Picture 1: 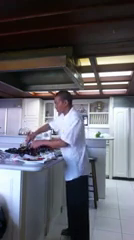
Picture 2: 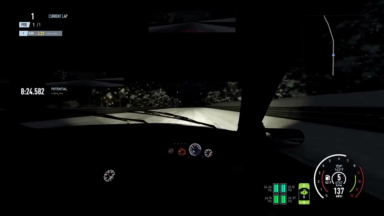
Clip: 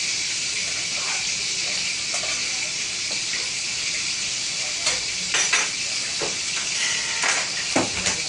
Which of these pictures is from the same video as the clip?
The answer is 1